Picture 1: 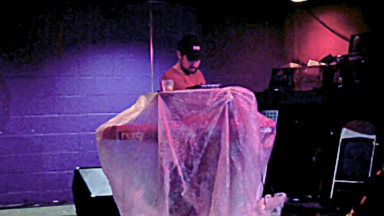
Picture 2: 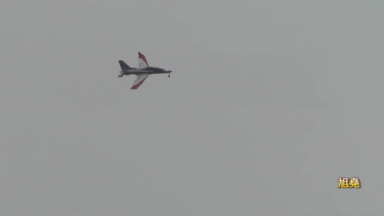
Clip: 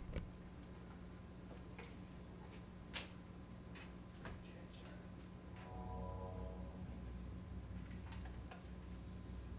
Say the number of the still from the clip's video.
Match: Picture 1